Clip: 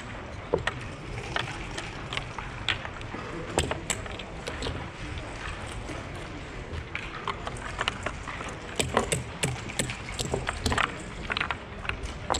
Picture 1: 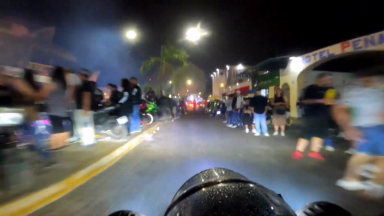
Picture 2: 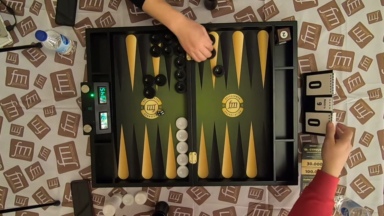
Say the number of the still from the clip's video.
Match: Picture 2